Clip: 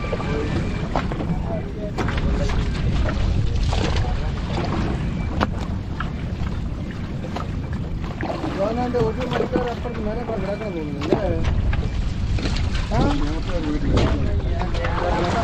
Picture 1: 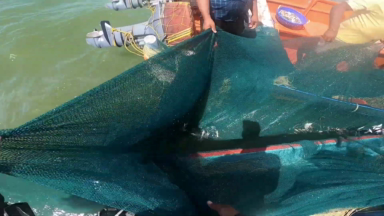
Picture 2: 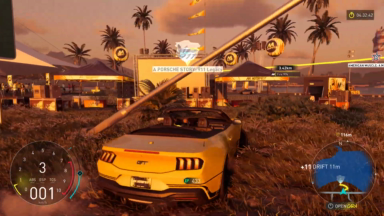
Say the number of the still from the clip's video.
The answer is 1